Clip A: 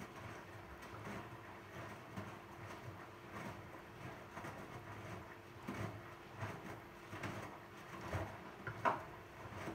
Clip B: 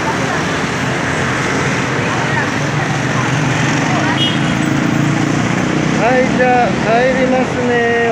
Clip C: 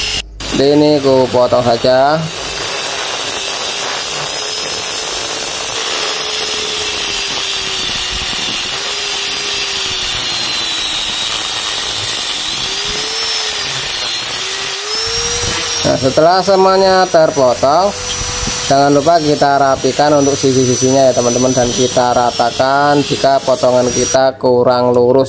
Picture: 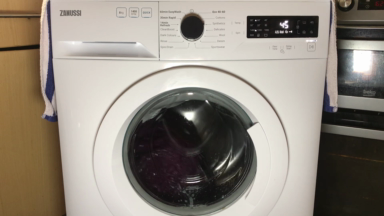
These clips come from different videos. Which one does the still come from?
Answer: A